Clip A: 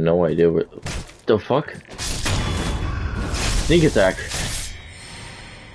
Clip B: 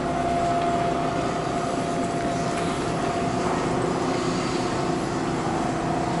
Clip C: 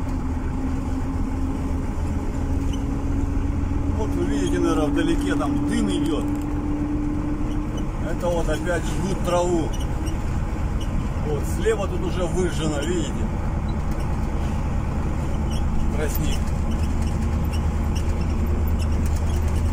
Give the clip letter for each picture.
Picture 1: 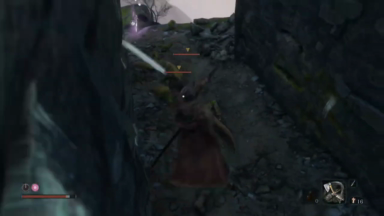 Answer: A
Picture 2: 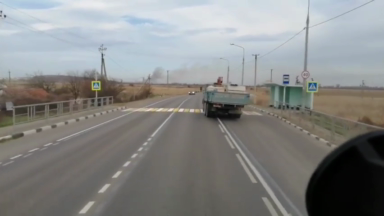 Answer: C